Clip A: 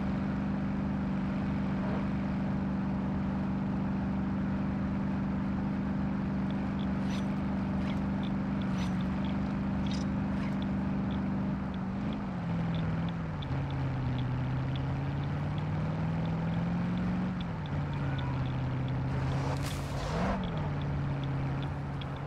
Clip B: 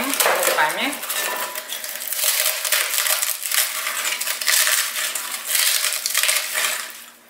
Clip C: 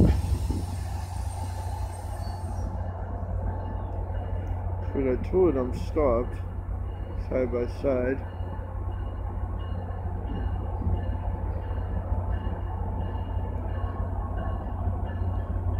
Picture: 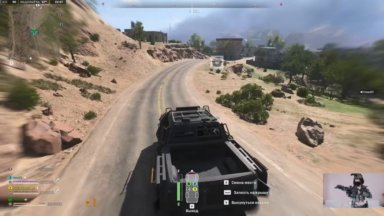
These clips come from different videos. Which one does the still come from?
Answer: A